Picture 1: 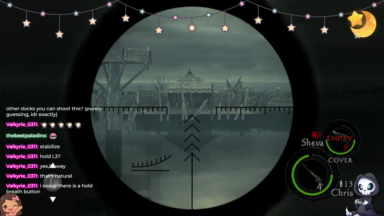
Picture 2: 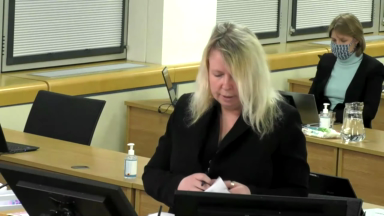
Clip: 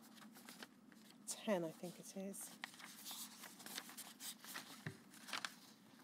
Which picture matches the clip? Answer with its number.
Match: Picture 2